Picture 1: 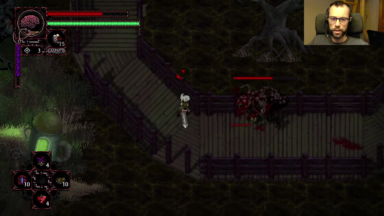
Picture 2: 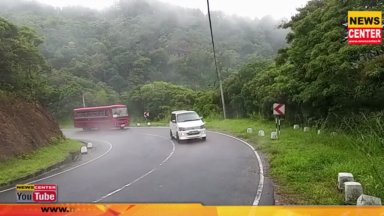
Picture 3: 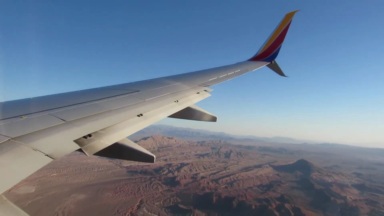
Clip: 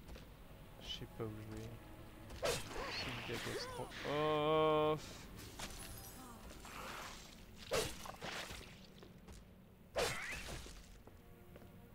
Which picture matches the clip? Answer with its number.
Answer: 1